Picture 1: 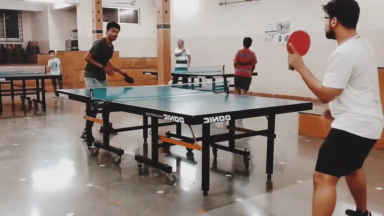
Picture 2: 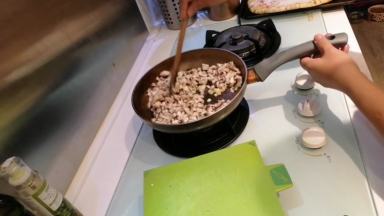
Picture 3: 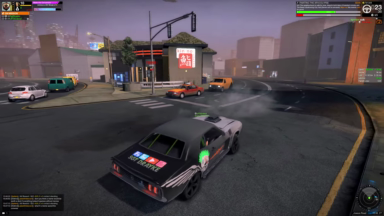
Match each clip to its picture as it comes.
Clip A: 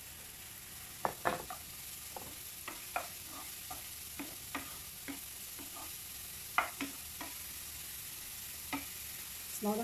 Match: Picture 2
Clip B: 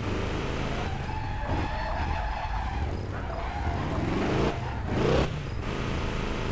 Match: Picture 3